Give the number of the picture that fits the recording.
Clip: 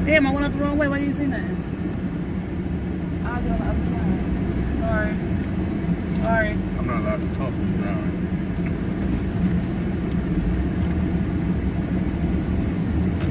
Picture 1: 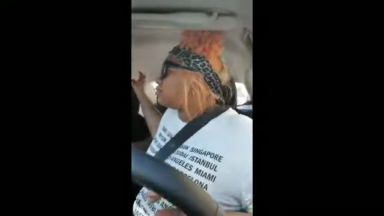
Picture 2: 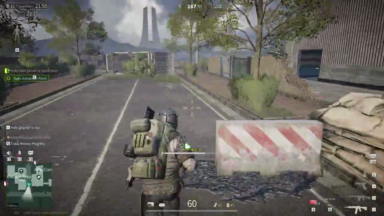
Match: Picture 1